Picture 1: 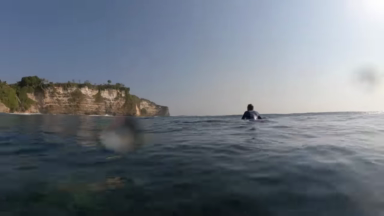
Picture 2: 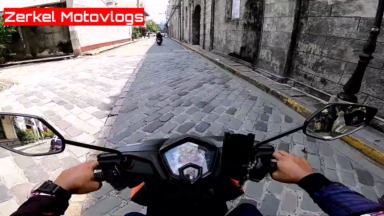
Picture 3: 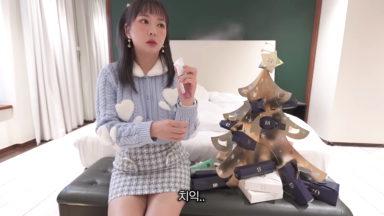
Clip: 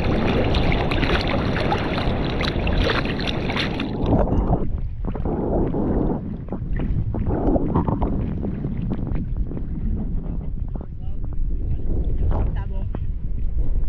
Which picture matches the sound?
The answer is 1